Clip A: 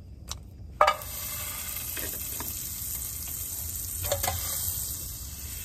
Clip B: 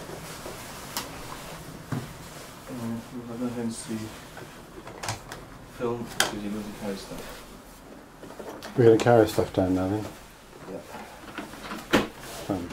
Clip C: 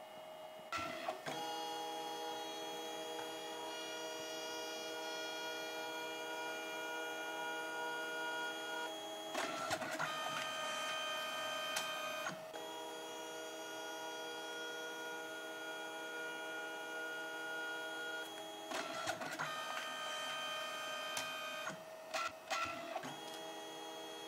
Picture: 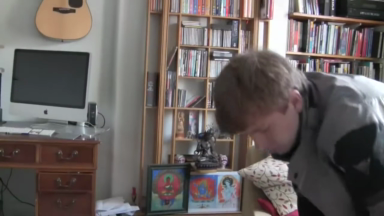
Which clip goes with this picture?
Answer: B